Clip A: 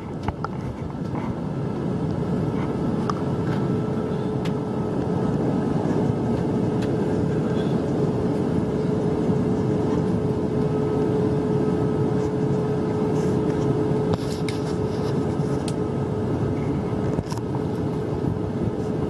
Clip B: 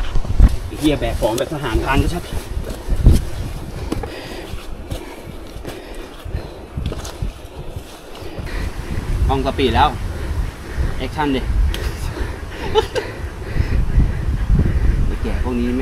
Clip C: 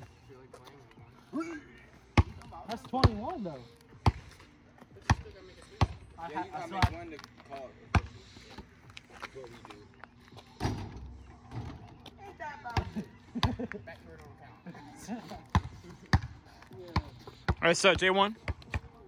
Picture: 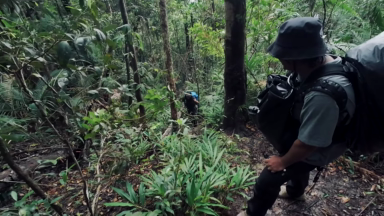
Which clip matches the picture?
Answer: B